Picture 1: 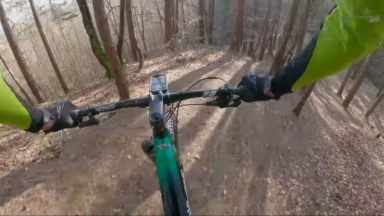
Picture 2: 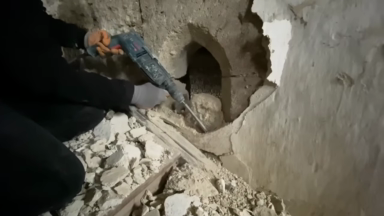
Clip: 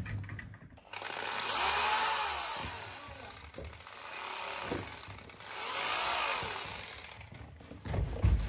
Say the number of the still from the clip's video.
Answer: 2